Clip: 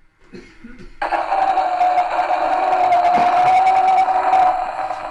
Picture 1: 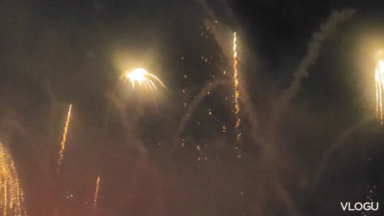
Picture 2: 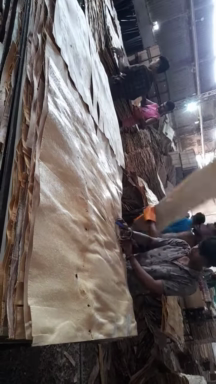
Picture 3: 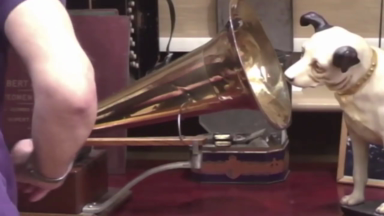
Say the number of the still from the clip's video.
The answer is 3